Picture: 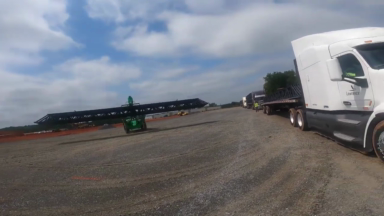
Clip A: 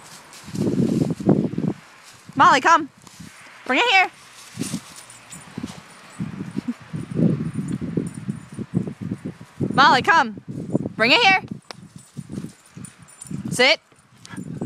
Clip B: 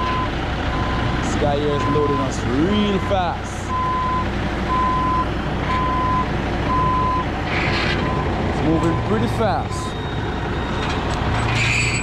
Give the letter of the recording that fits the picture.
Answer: B